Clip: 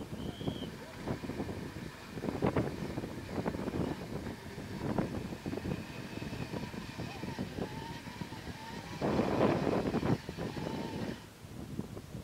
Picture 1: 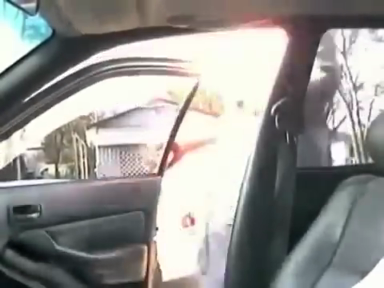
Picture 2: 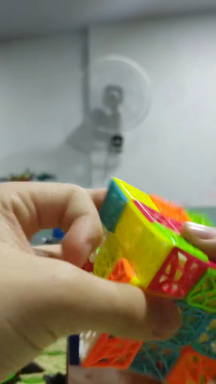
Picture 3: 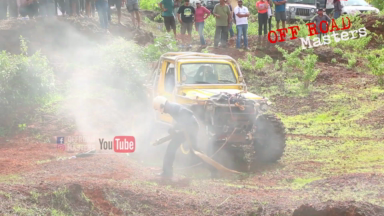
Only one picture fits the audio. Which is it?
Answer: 3